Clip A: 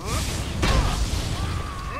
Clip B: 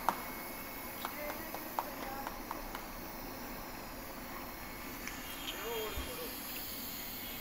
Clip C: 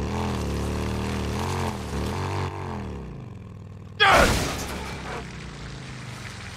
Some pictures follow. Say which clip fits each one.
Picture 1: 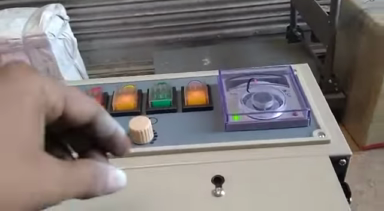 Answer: B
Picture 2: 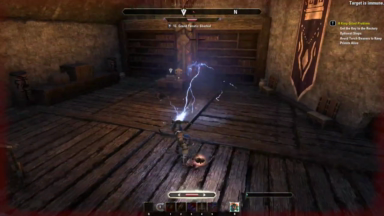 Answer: A